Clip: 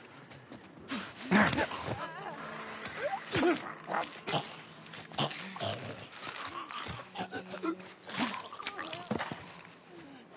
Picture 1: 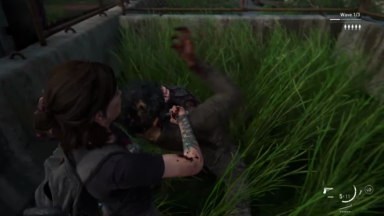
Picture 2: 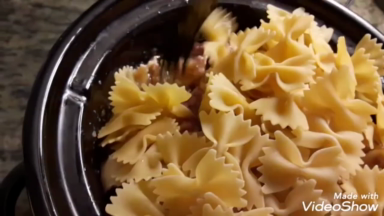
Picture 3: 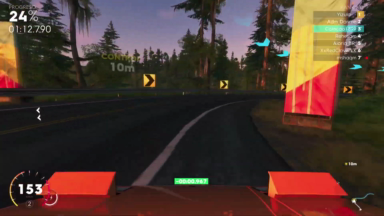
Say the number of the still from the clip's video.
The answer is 1